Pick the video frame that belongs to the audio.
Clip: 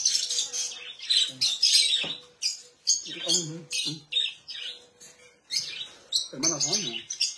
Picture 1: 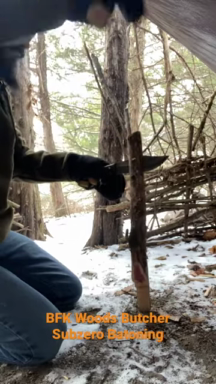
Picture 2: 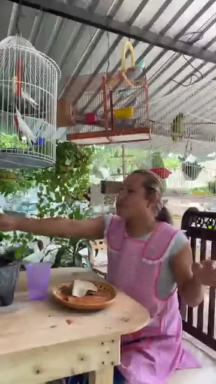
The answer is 2